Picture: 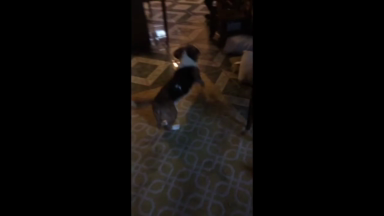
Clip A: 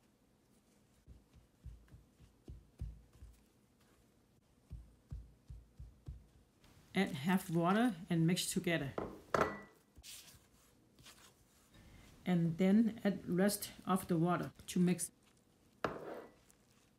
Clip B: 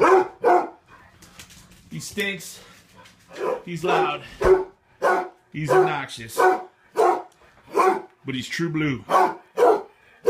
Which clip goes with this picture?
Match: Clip B